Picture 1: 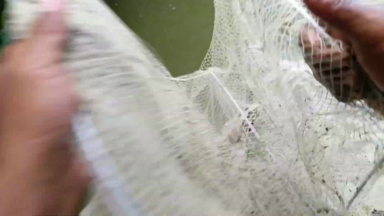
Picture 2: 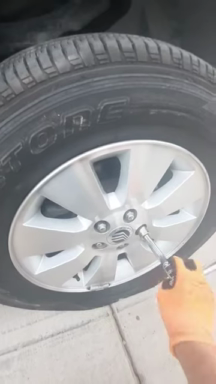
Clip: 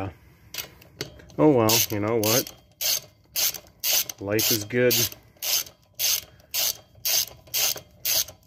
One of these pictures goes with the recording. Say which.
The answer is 2